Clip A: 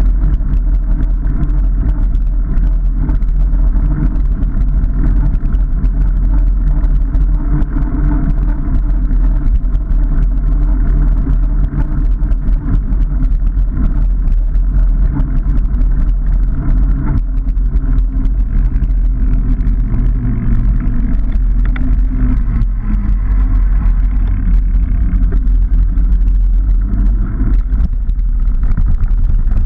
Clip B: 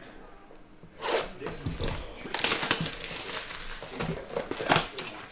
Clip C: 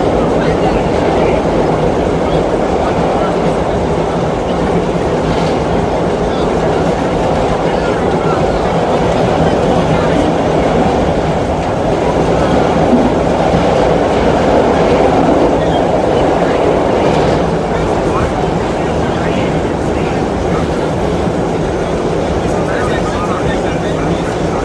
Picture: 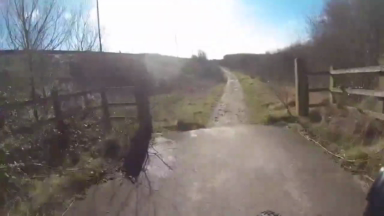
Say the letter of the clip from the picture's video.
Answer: A